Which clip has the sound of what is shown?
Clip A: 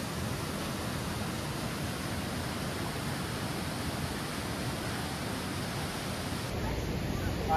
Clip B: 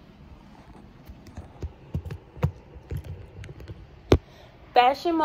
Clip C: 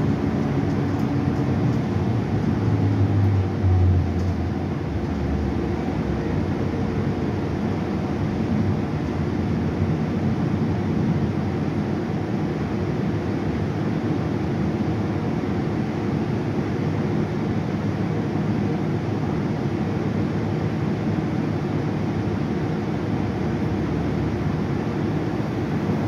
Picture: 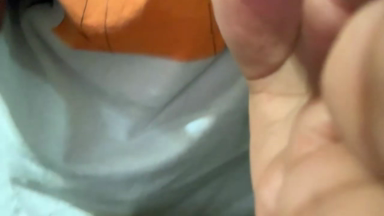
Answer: B